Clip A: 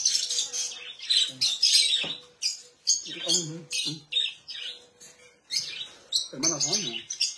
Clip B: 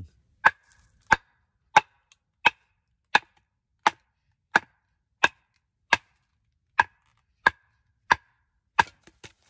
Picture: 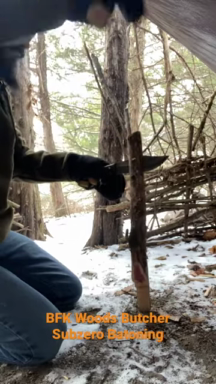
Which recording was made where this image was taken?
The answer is B